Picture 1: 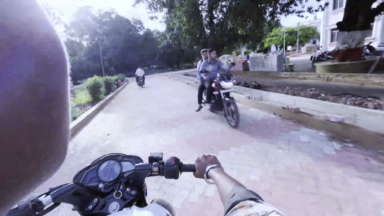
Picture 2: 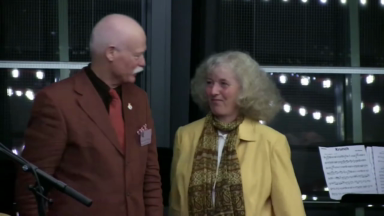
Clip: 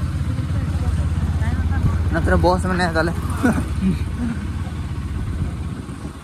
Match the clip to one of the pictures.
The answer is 1